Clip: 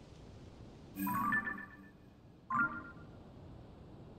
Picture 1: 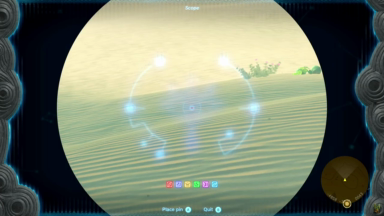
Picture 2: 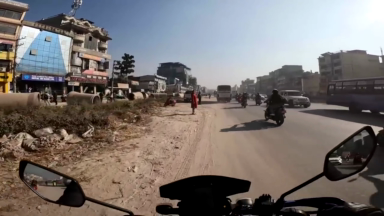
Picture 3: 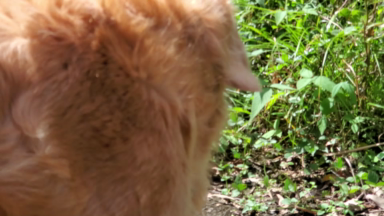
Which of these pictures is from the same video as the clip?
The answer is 1